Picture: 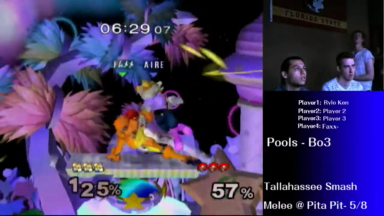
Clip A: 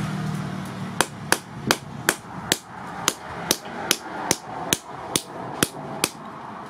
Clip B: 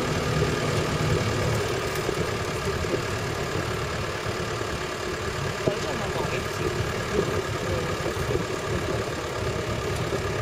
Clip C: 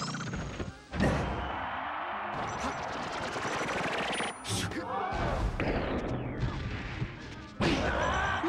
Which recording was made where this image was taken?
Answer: C